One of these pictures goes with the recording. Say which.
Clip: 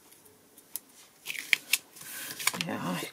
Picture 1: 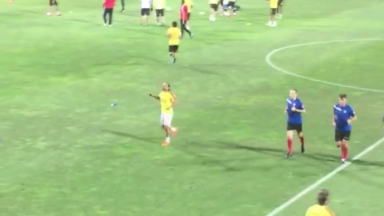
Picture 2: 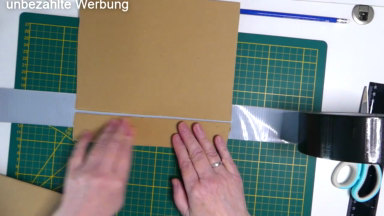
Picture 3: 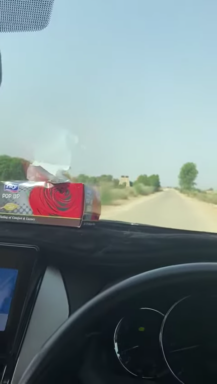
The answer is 2